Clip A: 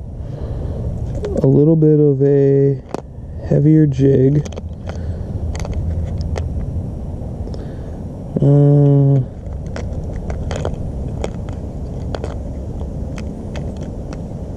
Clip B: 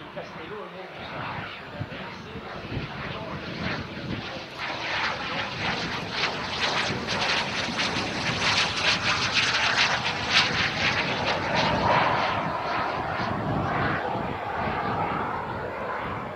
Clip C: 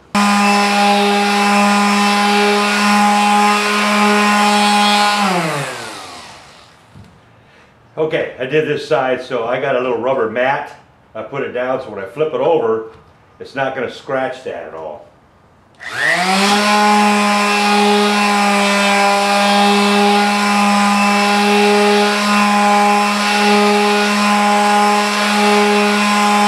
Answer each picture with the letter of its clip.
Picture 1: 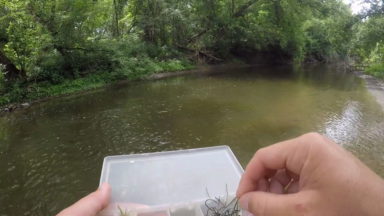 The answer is A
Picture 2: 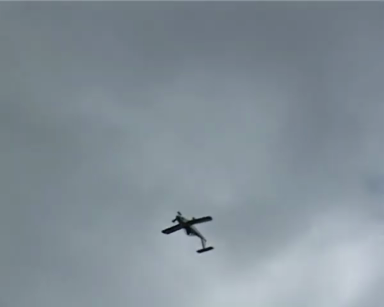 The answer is B